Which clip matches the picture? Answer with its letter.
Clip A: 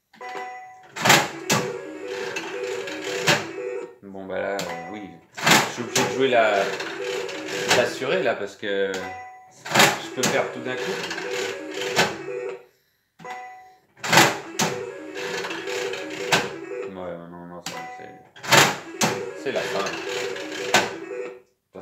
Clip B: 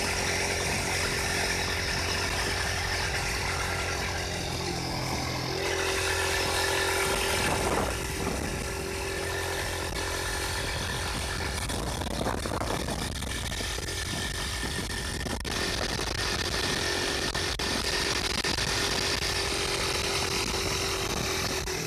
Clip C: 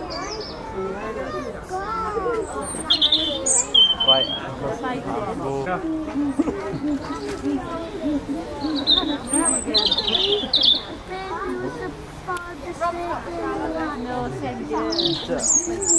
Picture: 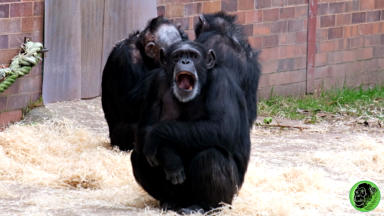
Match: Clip C